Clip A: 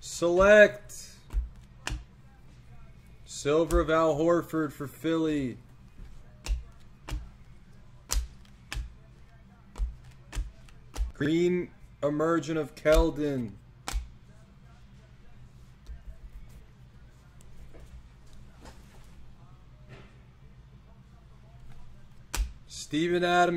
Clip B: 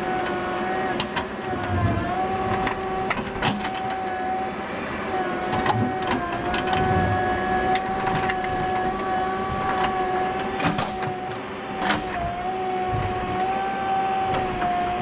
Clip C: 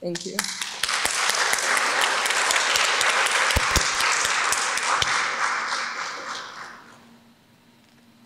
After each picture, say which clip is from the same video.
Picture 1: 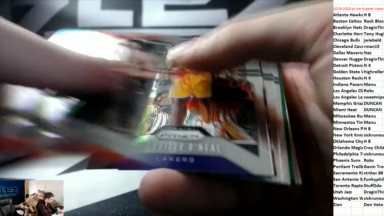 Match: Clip A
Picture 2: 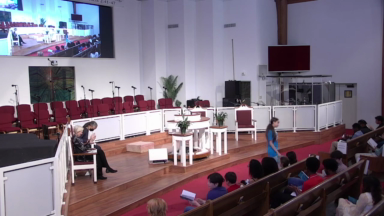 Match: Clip C